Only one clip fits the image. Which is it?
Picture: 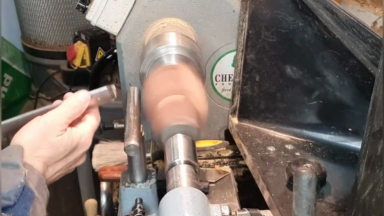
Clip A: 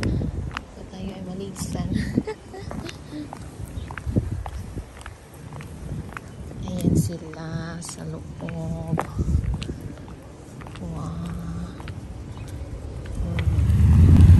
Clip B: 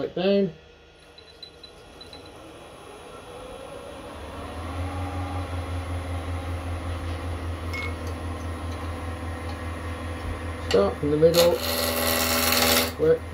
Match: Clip B